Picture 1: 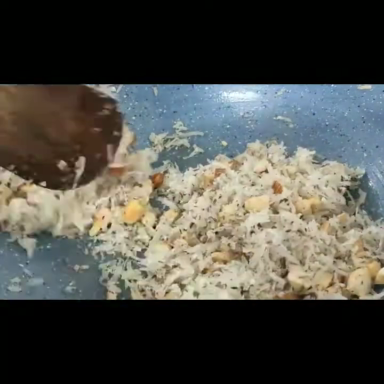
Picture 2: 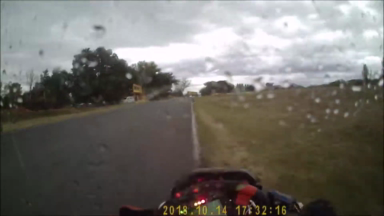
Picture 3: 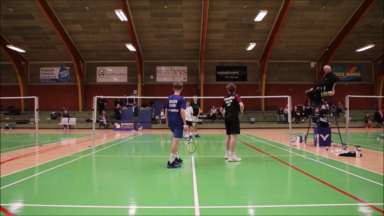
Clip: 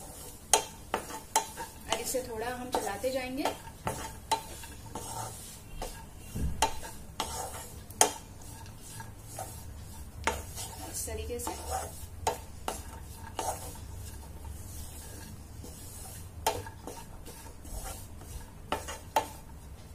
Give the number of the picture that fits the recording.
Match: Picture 1